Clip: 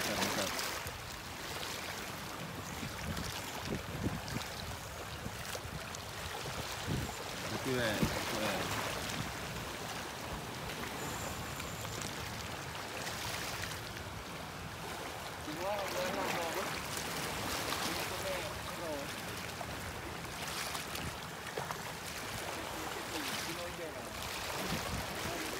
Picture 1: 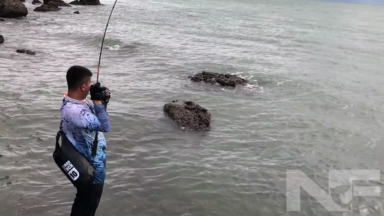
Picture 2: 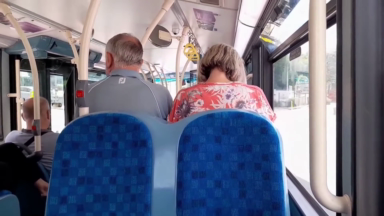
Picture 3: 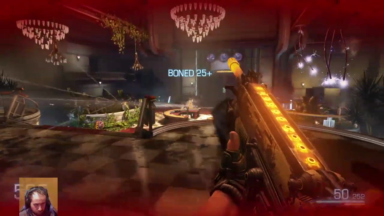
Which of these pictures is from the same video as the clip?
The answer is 1